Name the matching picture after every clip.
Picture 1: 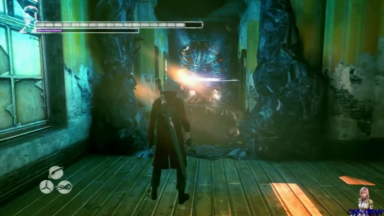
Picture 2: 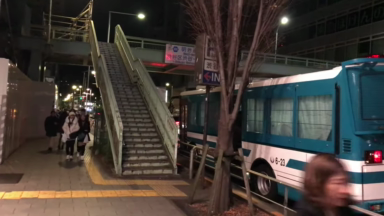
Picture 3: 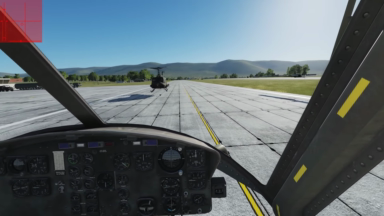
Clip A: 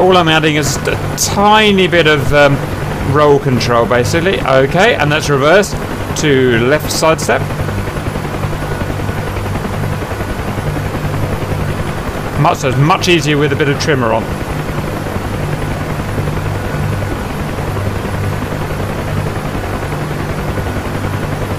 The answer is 3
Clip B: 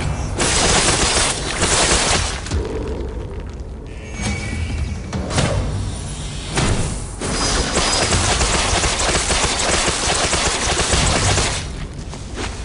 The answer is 1